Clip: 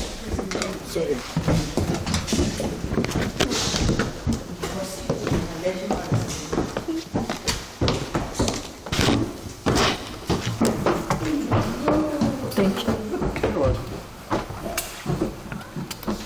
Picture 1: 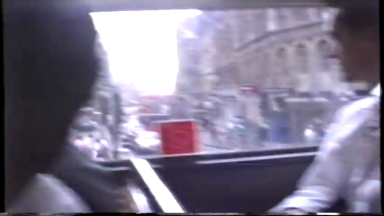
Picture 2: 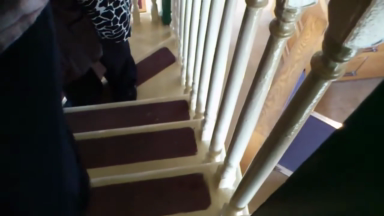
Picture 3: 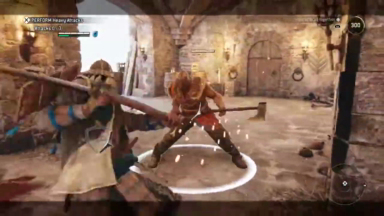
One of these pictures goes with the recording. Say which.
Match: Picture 2